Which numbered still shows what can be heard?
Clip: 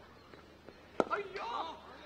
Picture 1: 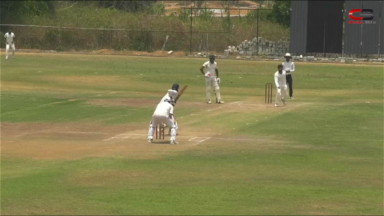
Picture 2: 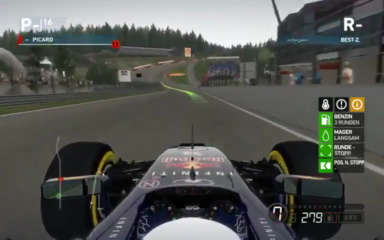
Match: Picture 1